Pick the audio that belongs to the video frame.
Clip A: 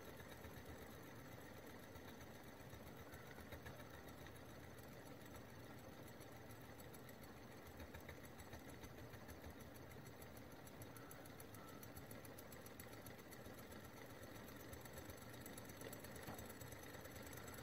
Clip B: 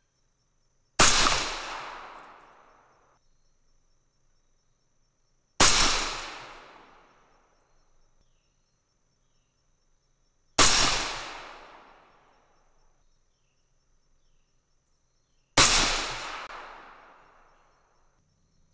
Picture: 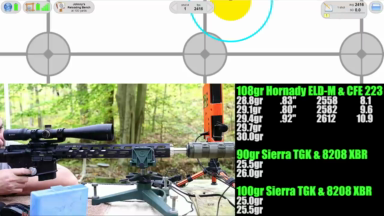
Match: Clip B